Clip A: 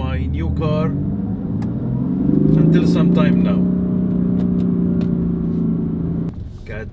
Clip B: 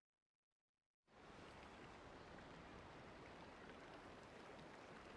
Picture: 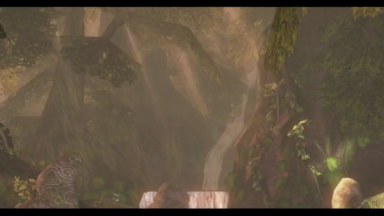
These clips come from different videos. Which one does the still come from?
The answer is B